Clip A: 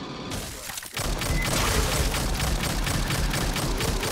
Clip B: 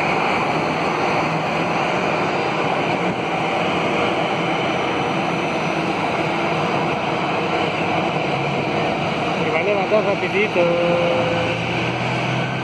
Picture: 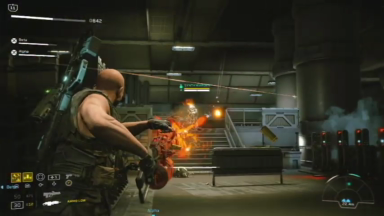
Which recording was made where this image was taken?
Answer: A